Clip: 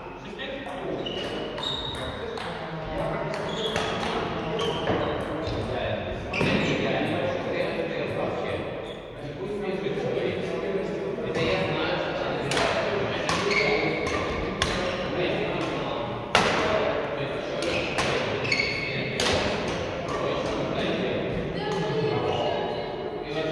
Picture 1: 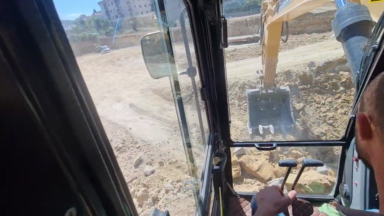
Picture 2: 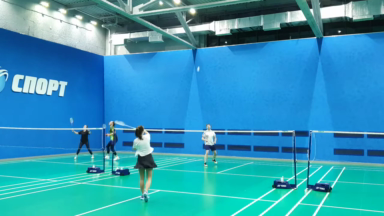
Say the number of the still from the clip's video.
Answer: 2